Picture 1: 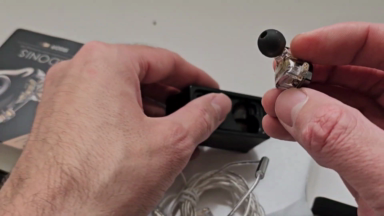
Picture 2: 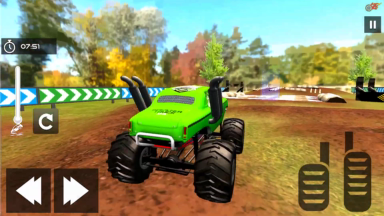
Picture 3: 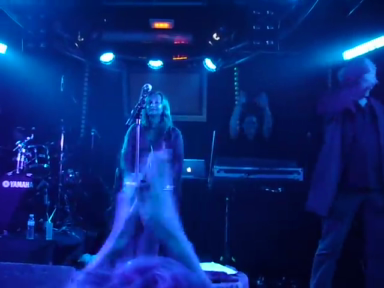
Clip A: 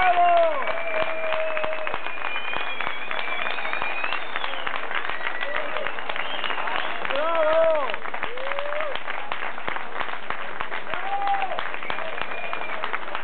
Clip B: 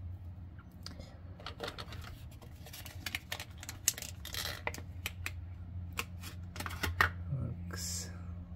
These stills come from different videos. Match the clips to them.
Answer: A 3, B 1